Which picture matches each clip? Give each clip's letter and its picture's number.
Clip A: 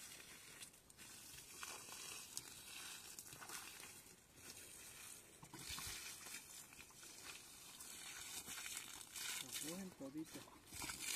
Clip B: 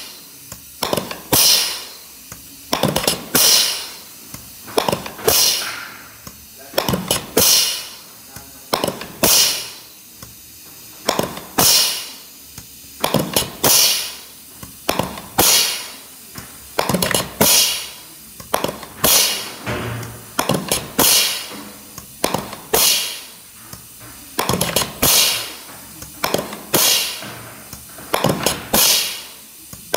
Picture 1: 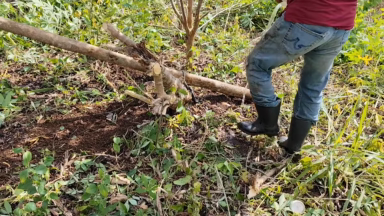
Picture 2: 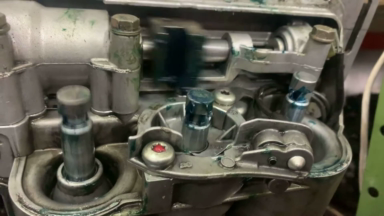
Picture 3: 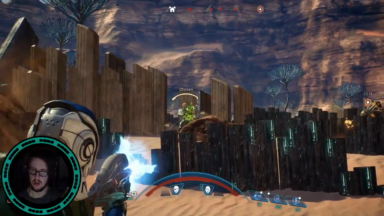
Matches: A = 1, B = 2